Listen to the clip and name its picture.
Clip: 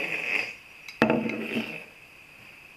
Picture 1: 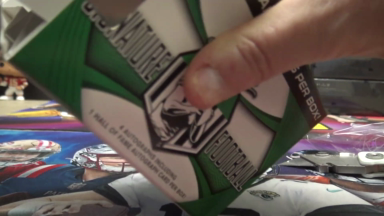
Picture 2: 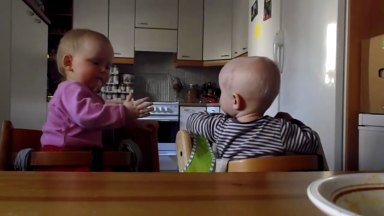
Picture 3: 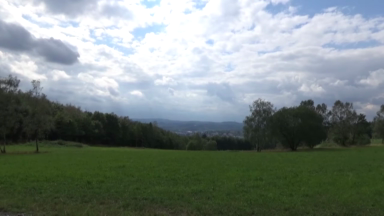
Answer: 2